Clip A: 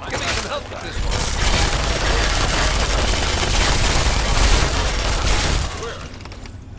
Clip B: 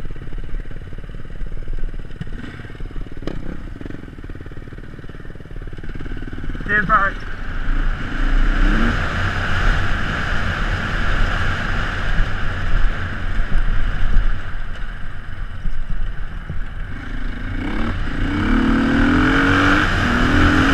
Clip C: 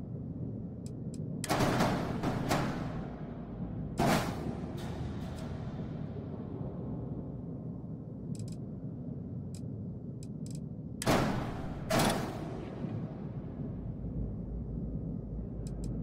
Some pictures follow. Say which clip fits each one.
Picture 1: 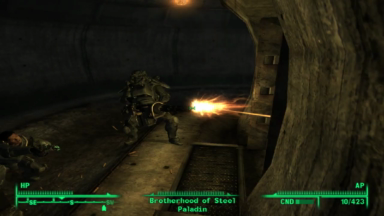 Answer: A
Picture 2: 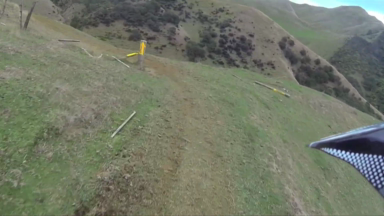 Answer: B